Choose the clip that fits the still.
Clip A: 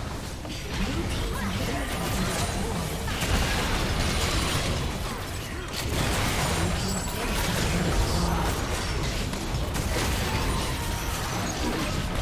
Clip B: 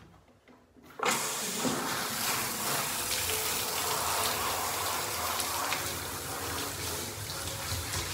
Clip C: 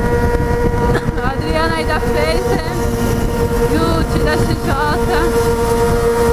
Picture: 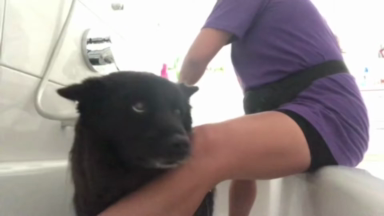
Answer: B